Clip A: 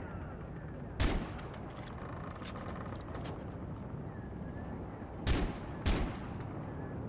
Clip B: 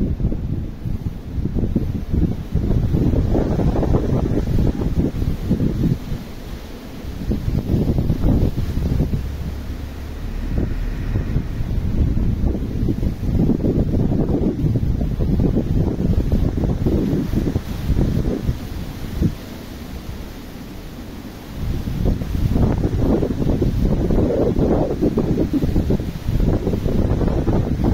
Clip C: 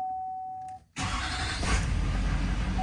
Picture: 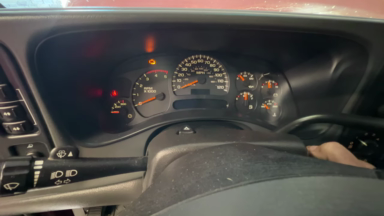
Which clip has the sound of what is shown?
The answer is C